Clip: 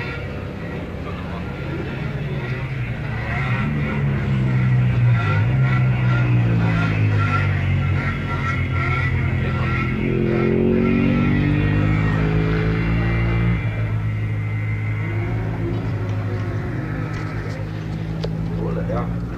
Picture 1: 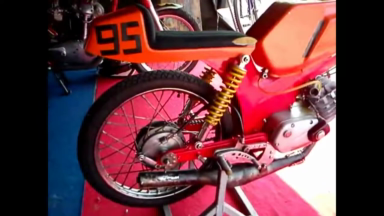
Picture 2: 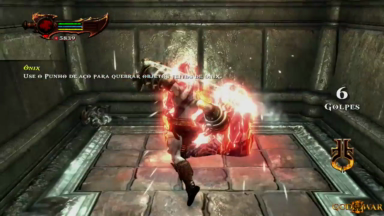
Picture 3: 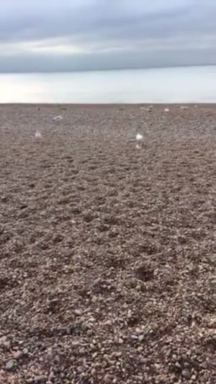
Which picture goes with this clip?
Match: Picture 1